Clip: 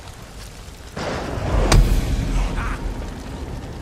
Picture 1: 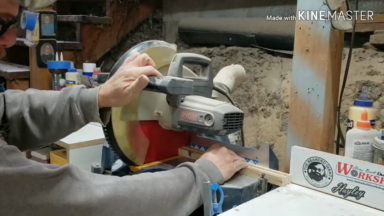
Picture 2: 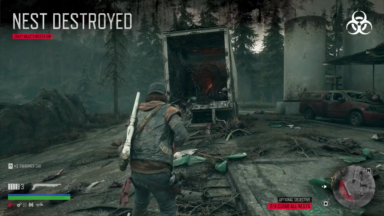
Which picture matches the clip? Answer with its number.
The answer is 2